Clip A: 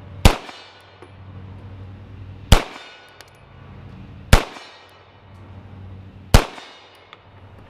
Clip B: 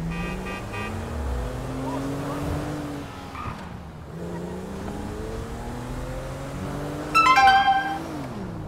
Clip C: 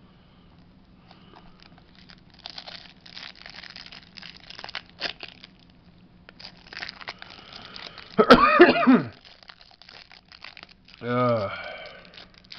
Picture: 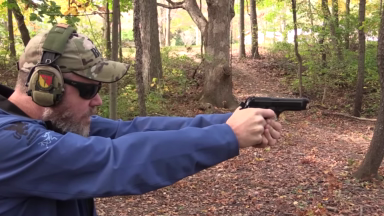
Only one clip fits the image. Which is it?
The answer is A